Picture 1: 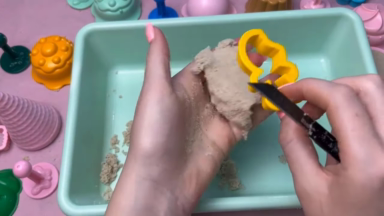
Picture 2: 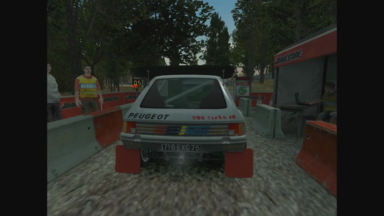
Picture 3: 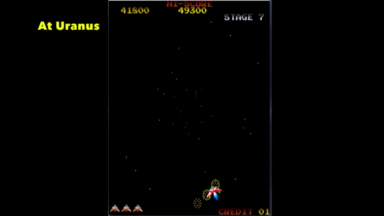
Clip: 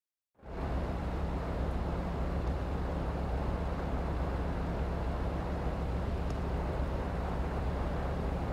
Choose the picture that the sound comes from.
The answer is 2